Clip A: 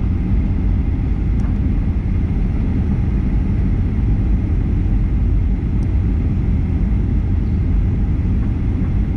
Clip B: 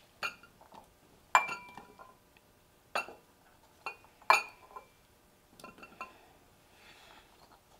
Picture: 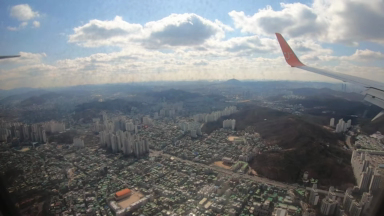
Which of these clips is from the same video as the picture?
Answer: A